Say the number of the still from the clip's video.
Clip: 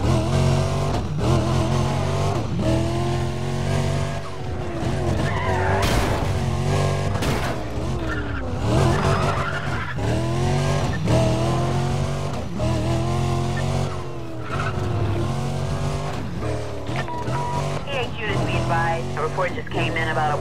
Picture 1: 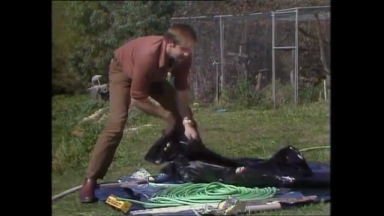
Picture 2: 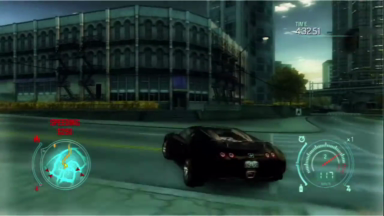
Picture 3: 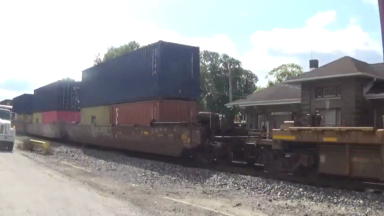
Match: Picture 2